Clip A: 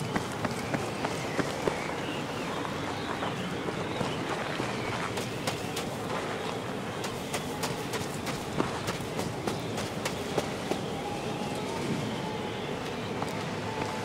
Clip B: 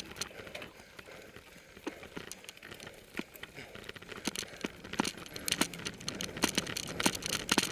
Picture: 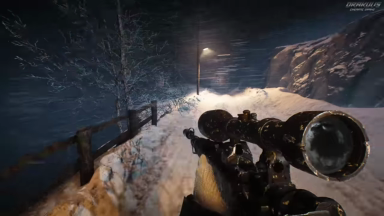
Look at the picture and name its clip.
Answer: A